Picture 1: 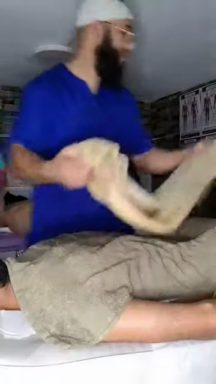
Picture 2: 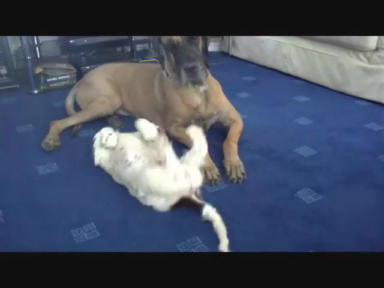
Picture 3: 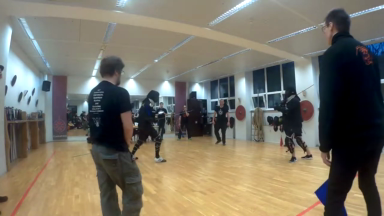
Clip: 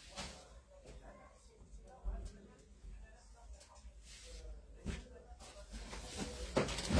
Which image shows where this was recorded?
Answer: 1